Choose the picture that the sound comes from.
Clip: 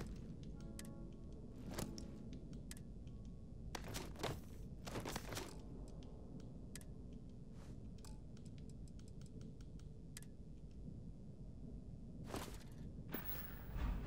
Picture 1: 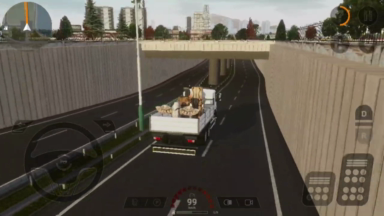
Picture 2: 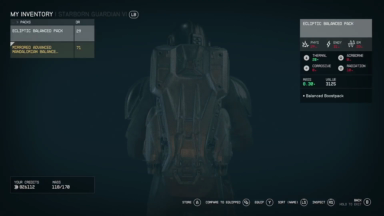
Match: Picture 2